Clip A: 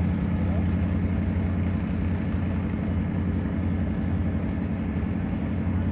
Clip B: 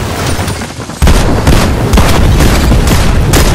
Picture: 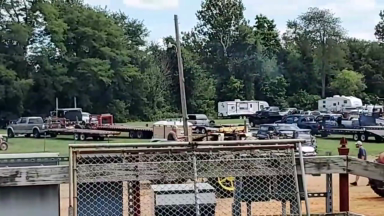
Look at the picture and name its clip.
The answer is A